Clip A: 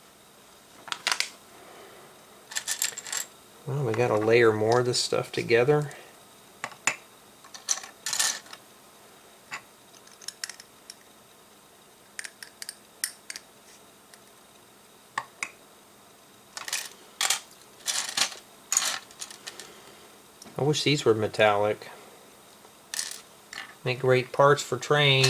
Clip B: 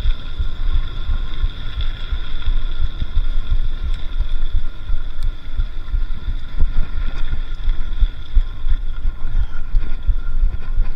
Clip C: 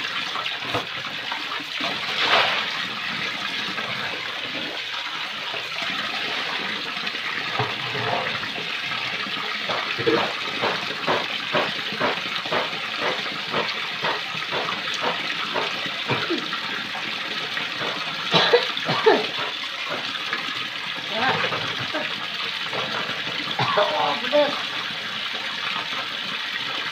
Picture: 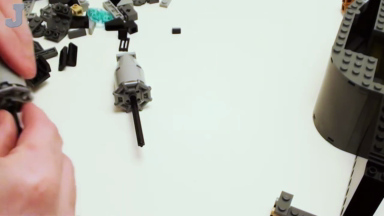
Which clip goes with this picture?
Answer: A